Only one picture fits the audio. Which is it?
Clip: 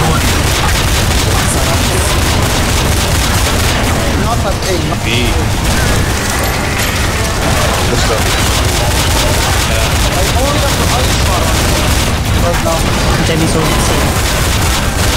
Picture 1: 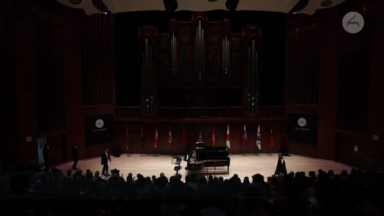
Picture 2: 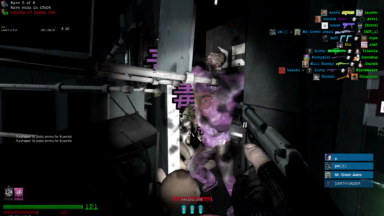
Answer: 2